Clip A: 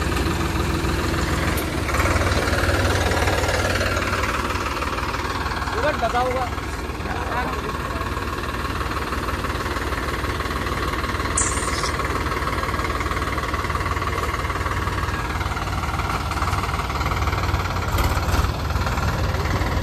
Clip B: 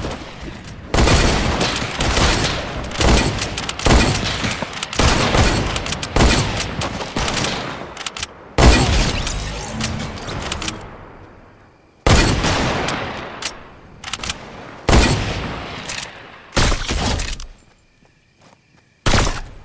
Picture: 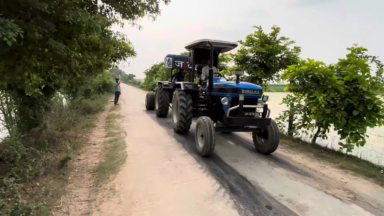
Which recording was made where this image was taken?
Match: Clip A